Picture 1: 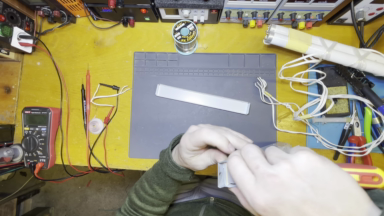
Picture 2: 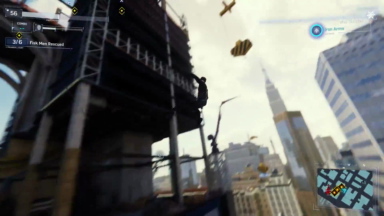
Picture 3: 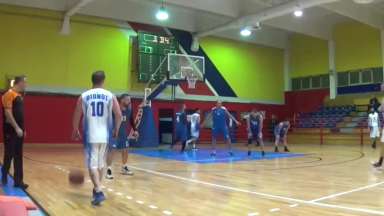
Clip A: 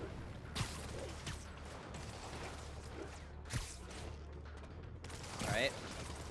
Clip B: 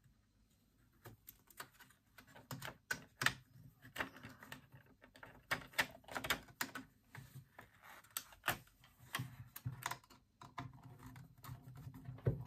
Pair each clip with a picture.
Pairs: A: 2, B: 1